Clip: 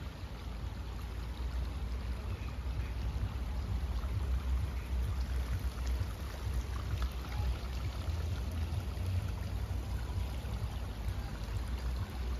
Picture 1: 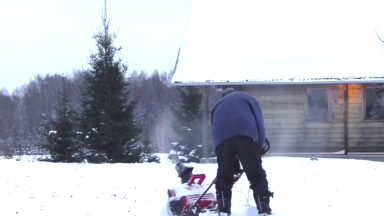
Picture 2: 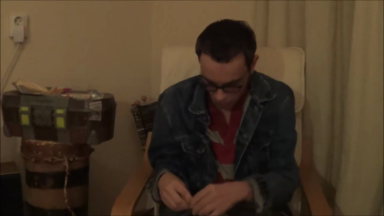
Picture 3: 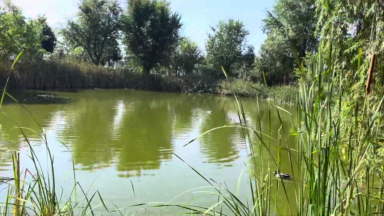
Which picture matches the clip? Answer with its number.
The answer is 3